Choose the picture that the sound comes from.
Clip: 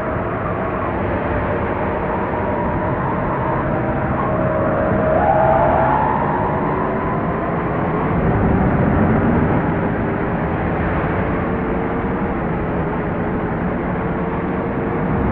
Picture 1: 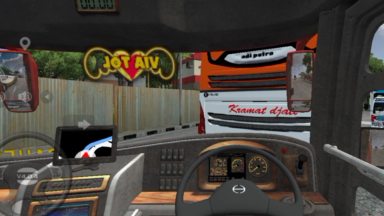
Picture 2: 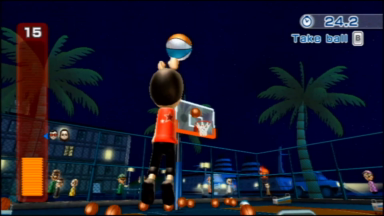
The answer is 1